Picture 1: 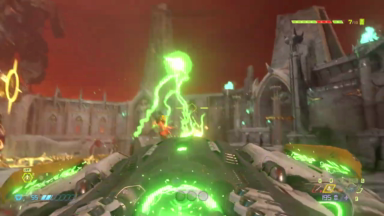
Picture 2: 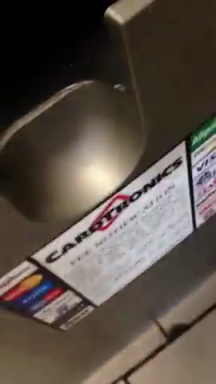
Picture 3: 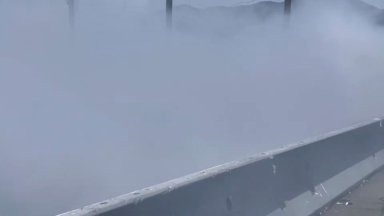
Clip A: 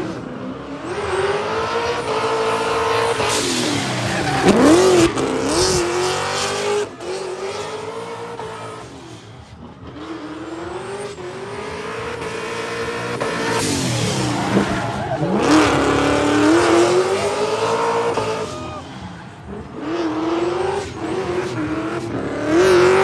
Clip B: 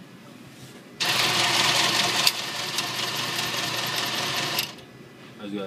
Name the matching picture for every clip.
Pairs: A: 3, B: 2